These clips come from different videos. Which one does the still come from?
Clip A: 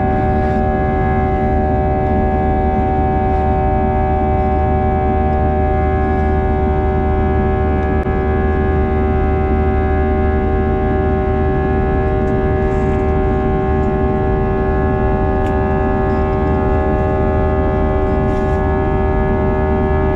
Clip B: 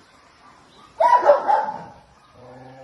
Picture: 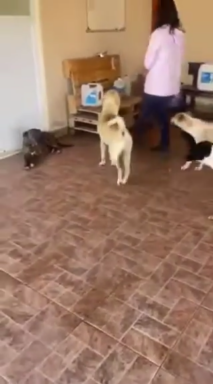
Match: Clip B